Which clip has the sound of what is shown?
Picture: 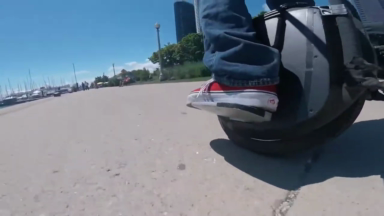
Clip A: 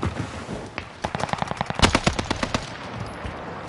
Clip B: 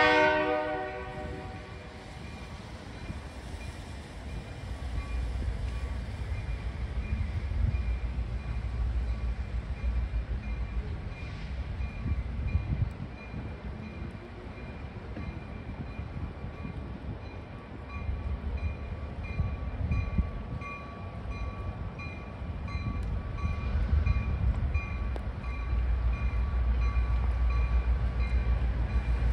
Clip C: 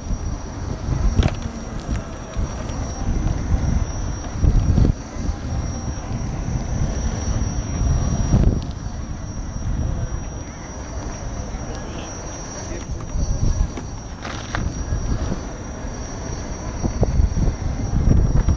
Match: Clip C